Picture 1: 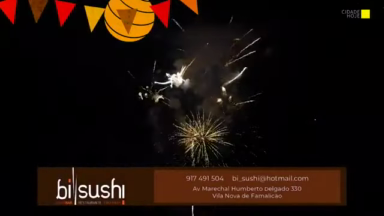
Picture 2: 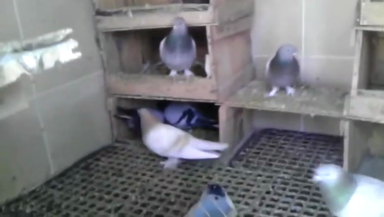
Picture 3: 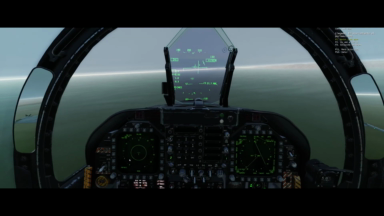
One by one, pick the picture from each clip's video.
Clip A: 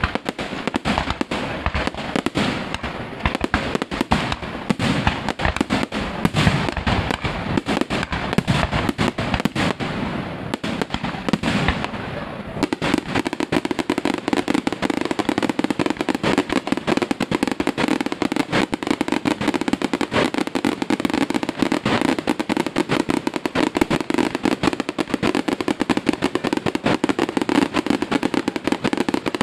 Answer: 1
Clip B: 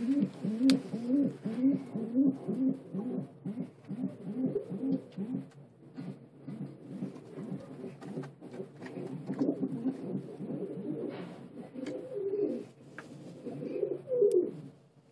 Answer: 2